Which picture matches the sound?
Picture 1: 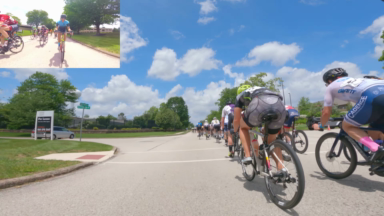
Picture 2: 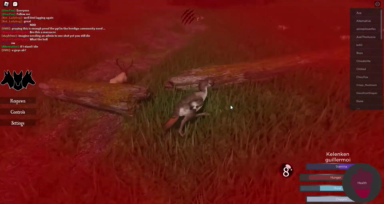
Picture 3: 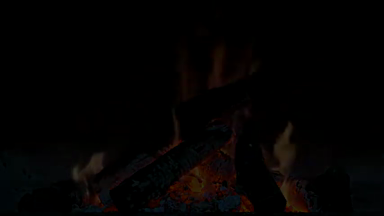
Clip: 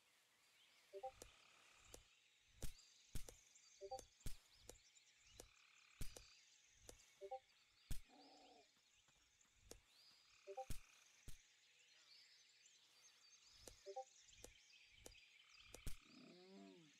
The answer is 2